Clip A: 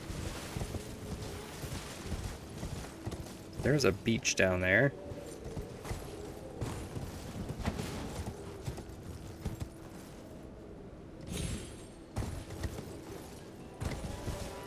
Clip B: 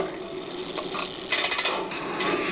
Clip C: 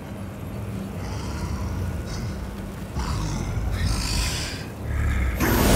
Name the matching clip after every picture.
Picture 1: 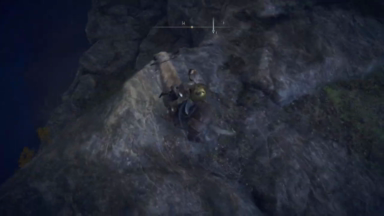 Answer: A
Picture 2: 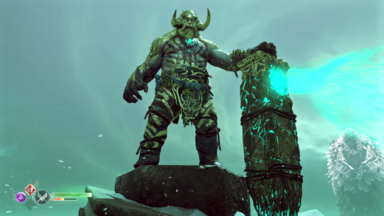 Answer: C